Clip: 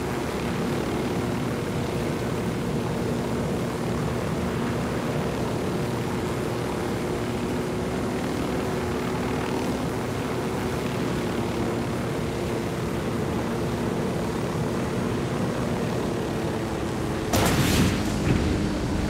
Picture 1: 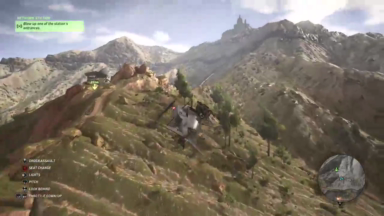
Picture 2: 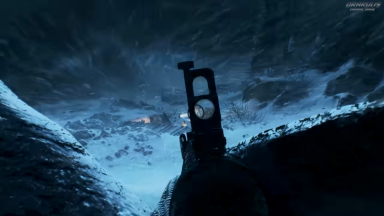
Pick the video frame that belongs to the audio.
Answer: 1